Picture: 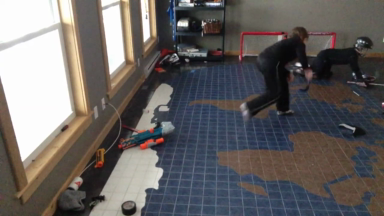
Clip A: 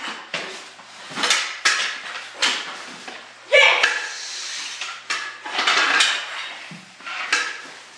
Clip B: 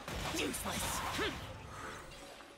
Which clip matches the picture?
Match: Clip A